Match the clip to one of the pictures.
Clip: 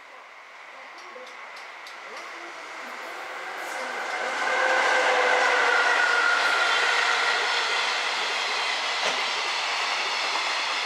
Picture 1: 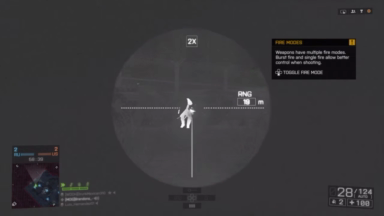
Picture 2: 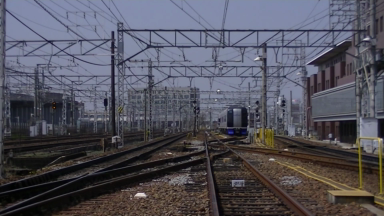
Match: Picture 2